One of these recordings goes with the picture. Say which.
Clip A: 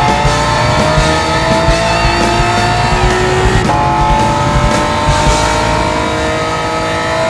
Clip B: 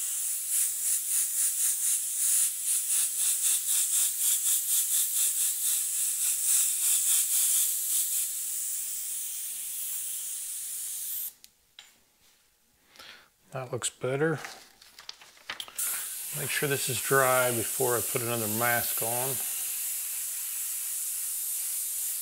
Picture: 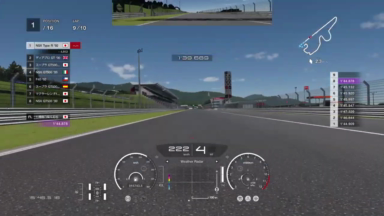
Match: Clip A